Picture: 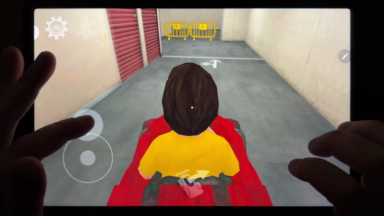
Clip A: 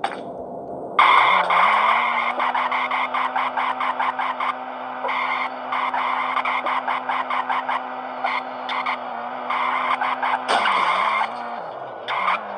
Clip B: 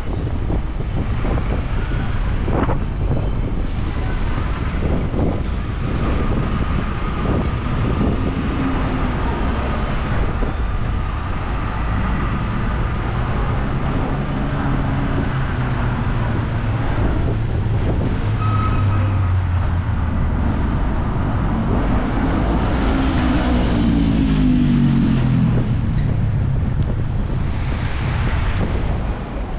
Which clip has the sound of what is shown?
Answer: A